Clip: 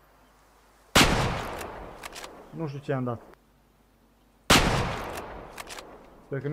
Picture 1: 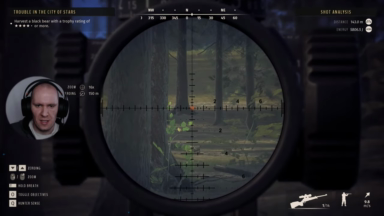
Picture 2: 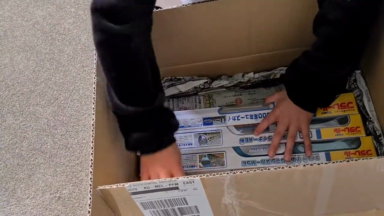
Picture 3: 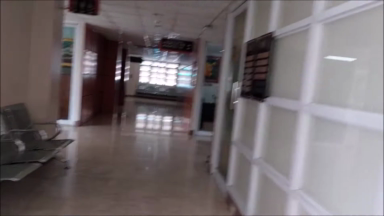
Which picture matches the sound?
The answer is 1